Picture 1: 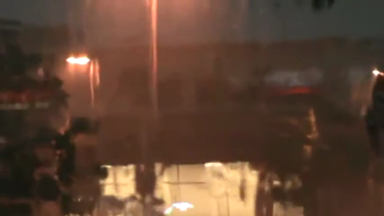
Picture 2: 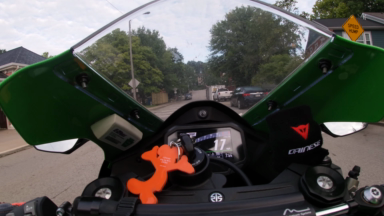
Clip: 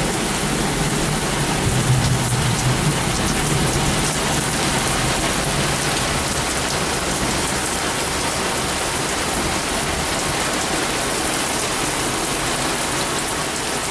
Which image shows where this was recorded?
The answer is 1